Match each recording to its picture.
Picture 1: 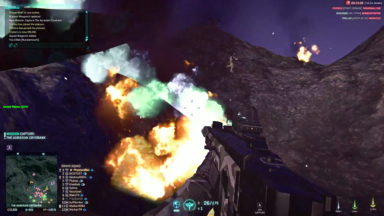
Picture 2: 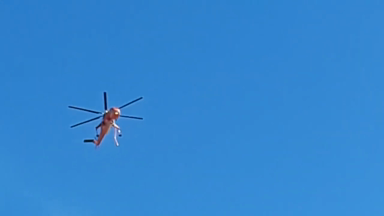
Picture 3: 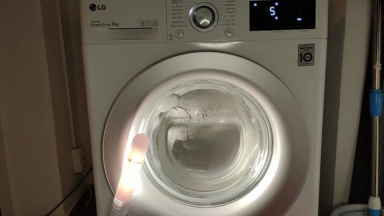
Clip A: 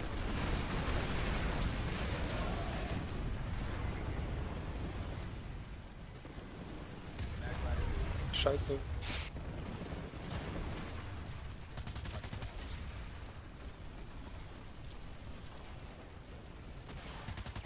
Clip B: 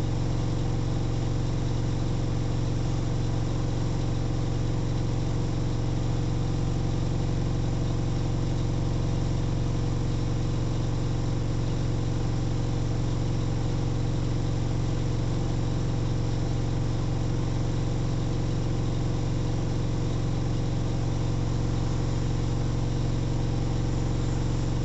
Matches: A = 1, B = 3